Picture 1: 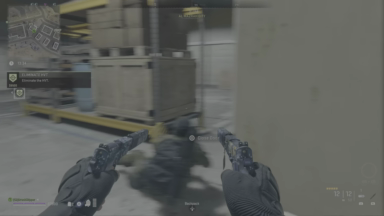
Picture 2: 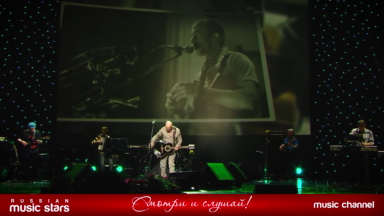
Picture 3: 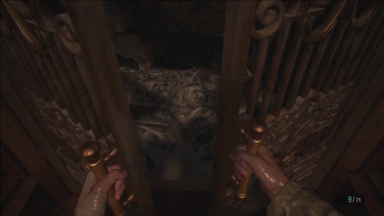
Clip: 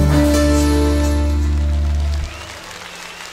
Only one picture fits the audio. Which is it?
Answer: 2